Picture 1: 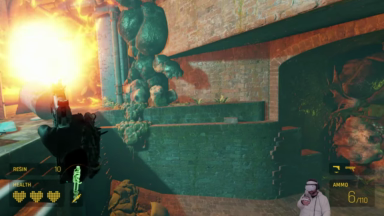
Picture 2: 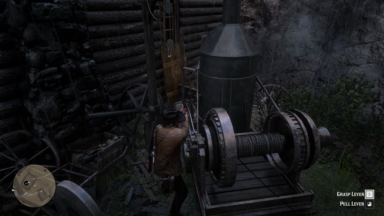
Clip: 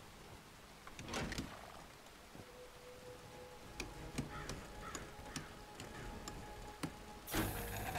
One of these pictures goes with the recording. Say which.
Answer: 2